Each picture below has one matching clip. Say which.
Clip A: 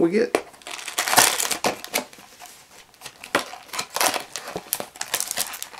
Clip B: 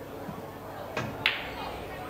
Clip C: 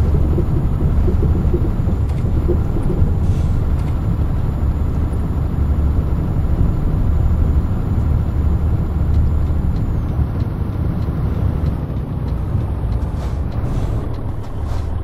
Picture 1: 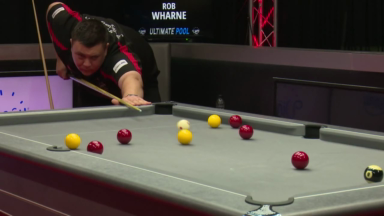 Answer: B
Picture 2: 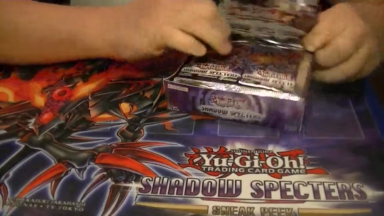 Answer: A